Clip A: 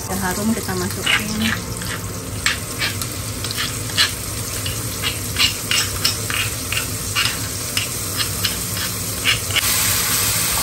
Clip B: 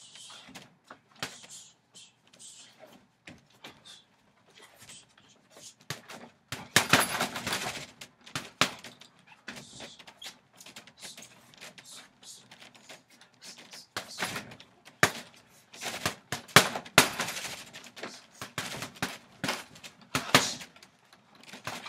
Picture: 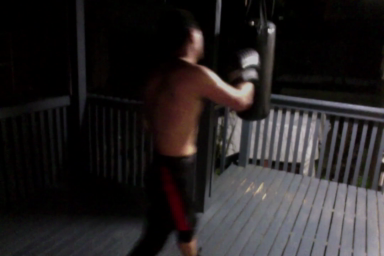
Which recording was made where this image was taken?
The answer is B